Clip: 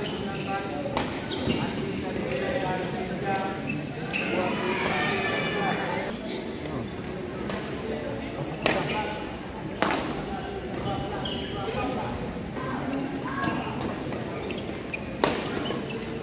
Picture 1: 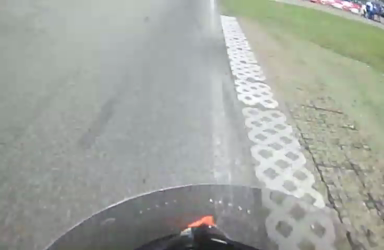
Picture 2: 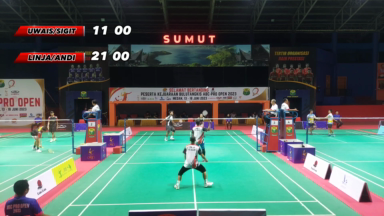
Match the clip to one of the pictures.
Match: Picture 2